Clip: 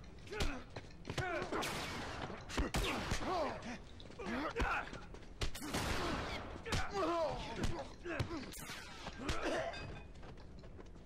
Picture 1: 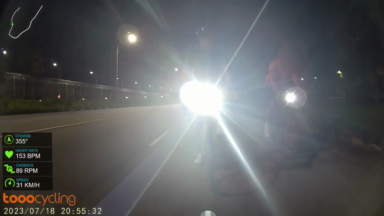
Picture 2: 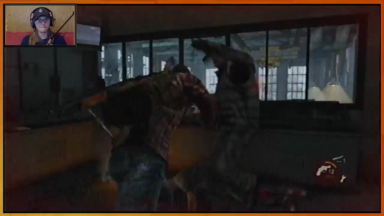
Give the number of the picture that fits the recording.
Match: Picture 2